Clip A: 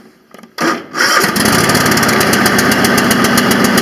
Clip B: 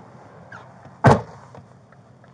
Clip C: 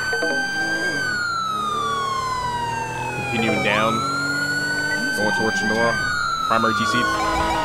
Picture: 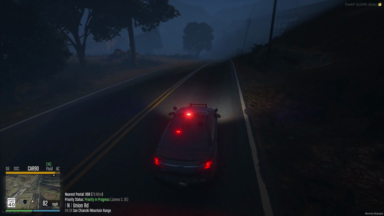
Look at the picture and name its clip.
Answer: C